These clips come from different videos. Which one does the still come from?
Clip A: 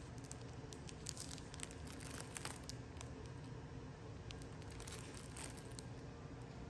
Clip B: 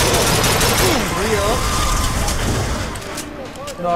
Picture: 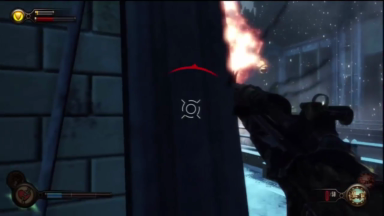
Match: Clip B